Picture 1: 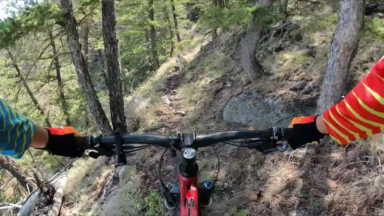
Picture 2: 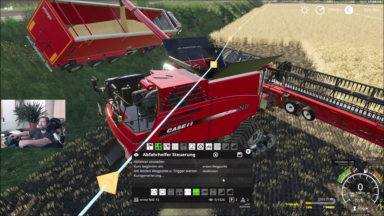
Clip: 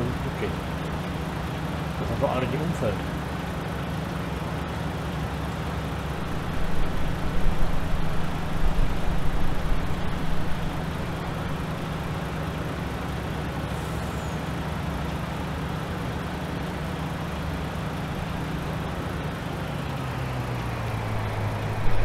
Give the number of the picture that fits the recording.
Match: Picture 2